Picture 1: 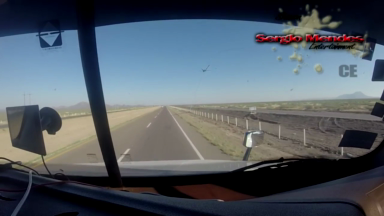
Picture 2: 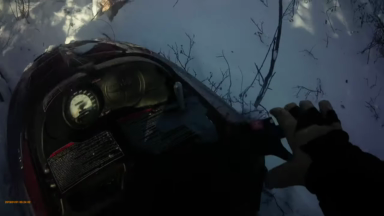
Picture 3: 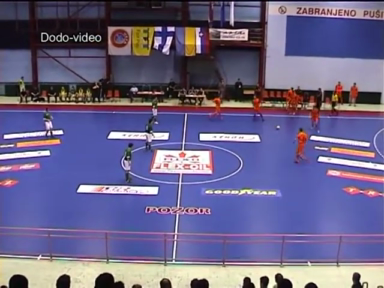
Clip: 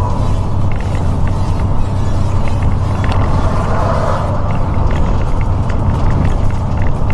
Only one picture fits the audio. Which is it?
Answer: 1